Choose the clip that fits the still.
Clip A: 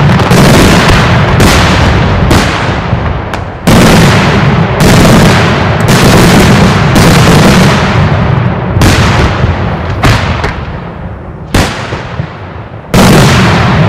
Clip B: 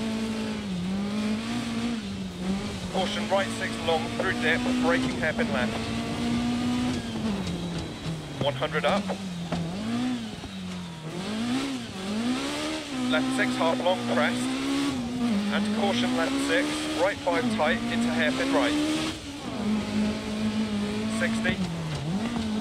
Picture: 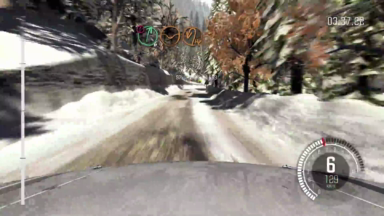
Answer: B